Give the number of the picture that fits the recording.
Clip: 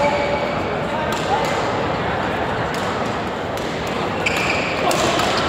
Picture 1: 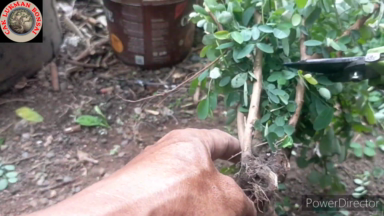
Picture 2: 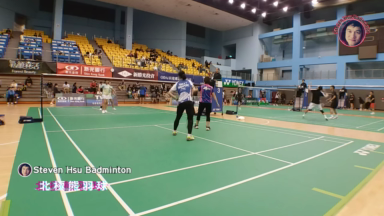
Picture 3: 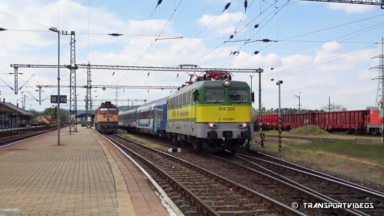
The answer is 2